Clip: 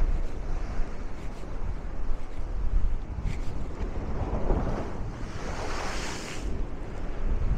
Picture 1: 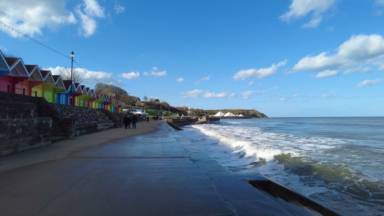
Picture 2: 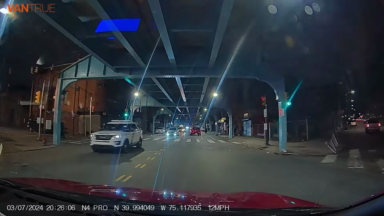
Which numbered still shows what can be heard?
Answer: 1